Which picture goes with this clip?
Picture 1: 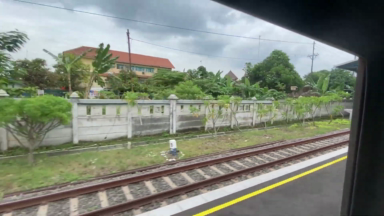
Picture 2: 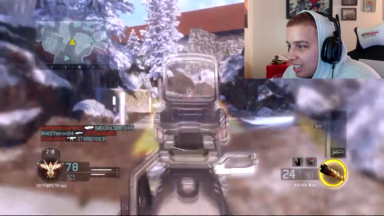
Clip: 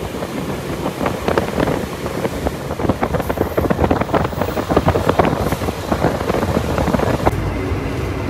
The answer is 1